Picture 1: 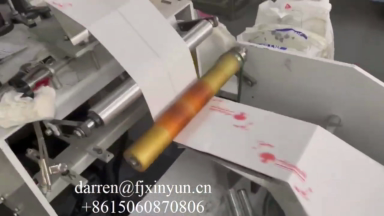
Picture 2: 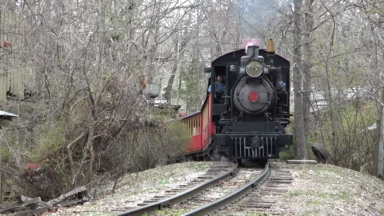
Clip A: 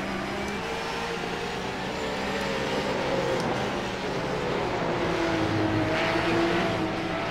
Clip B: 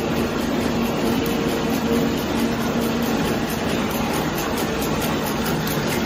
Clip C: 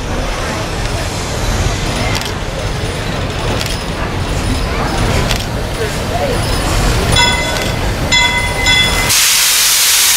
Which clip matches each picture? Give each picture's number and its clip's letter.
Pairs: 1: B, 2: C